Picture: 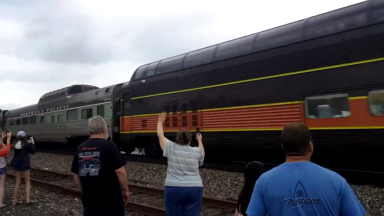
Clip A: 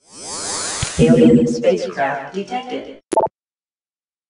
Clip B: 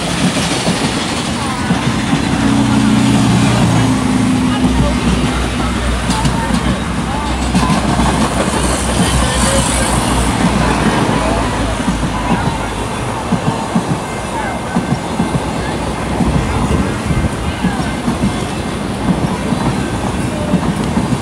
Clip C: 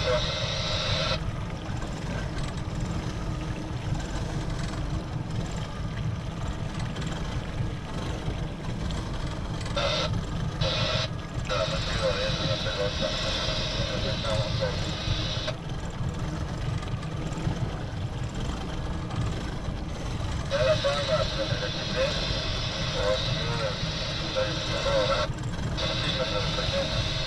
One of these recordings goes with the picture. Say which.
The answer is B